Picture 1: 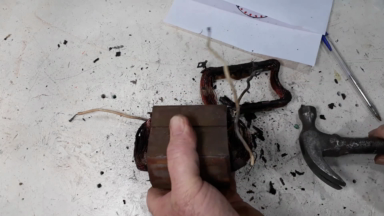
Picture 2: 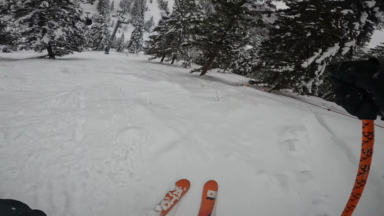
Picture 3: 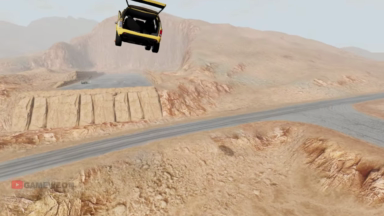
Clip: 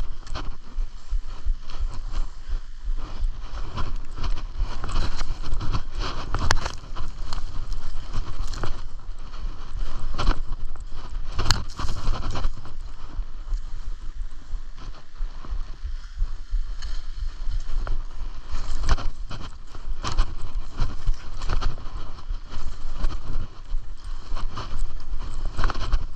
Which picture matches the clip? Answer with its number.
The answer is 2